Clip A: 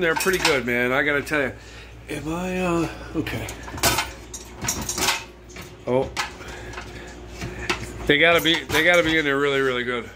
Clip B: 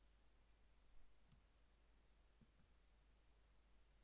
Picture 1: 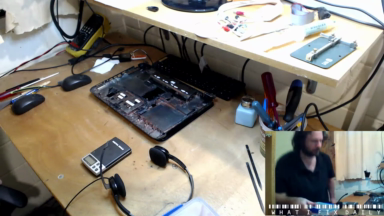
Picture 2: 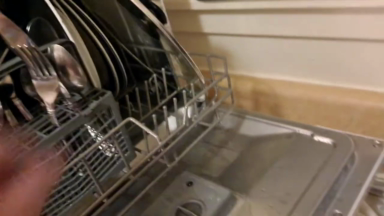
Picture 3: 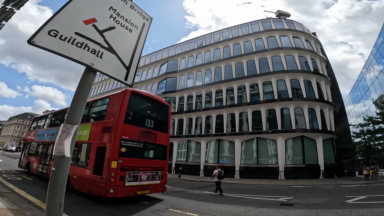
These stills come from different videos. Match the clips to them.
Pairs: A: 2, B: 1